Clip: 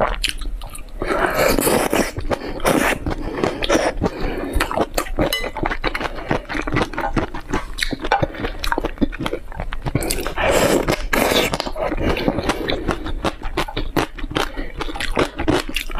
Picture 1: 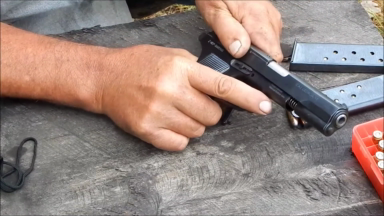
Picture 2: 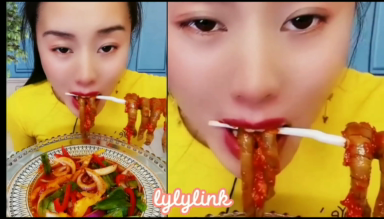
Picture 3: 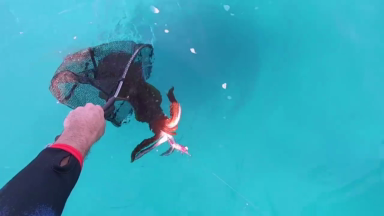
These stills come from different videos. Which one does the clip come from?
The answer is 2